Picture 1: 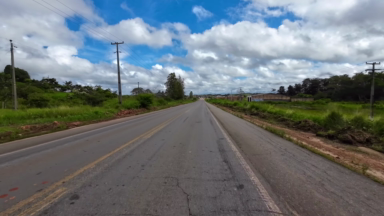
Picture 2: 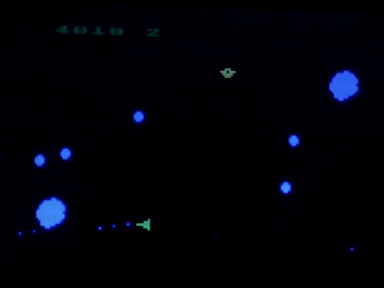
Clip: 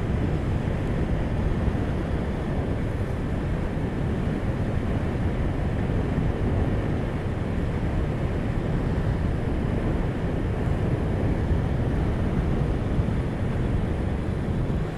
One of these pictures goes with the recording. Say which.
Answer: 1